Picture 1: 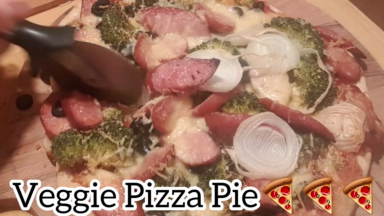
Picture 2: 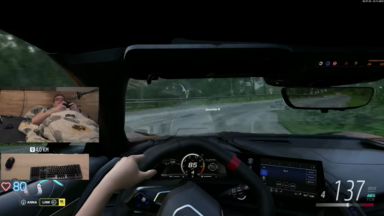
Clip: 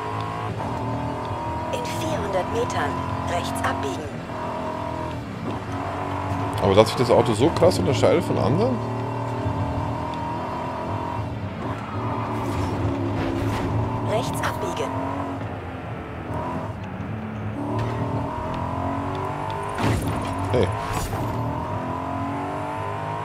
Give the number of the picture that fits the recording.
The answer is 2